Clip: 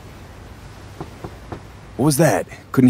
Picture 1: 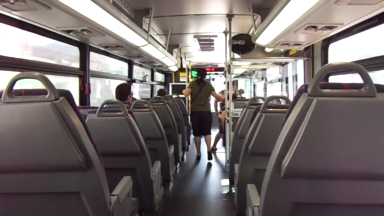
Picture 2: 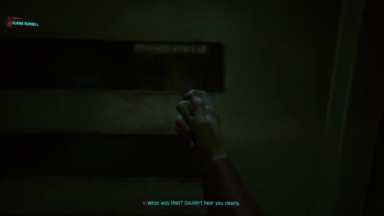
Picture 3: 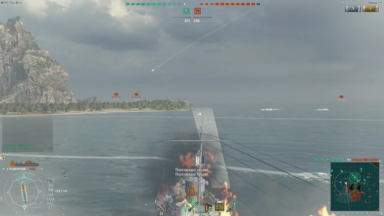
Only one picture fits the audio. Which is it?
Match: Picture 2